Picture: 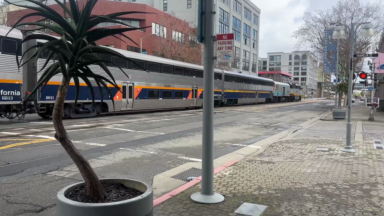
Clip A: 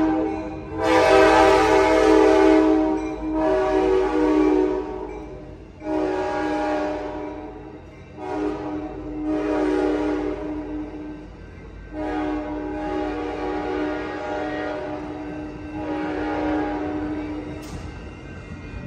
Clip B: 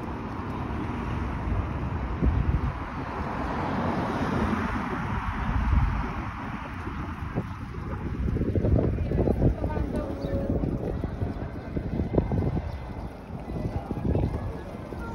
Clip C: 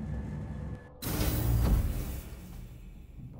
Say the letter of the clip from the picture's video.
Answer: A